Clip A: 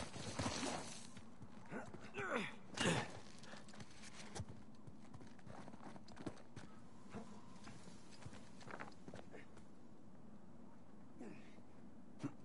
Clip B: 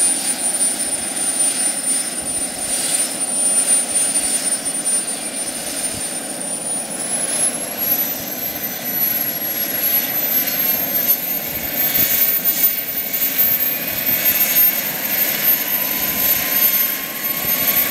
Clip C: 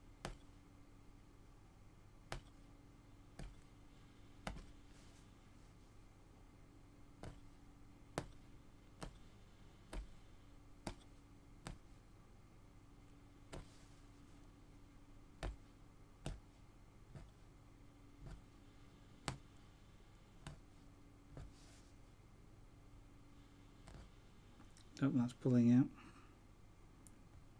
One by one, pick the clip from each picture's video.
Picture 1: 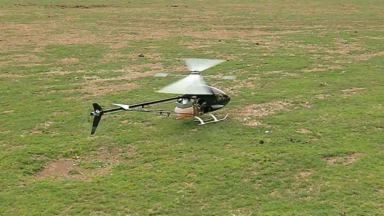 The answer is B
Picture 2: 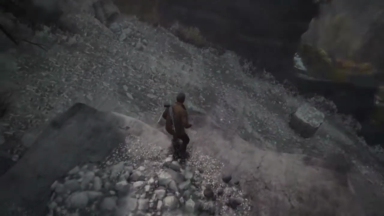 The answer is A